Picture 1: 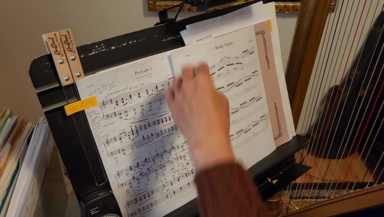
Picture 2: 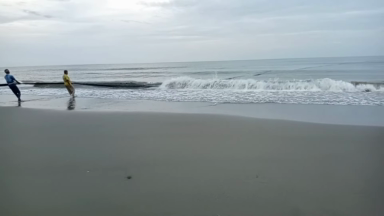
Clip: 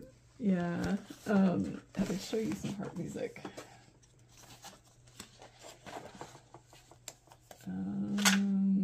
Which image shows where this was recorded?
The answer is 1